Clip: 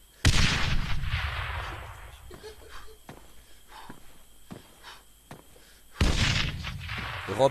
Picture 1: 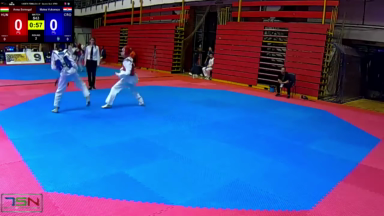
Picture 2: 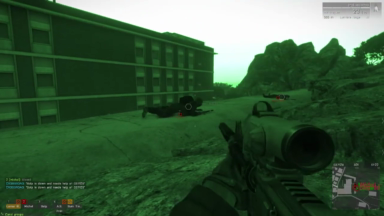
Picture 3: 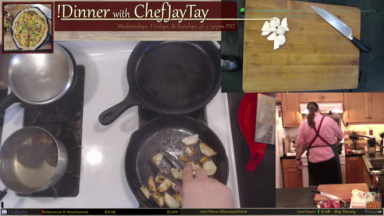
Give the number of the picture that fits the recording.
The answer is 2